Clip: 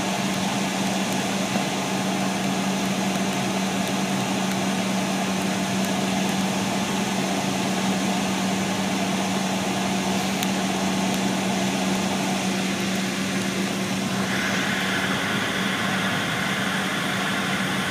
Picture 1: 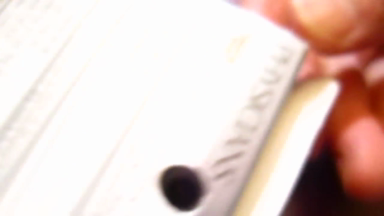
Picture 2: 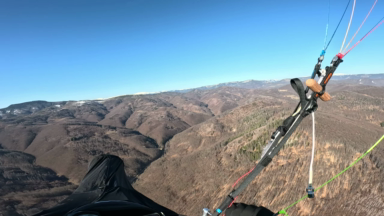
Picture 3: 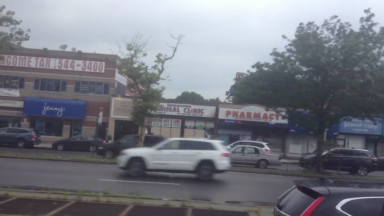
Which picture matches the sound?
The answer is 3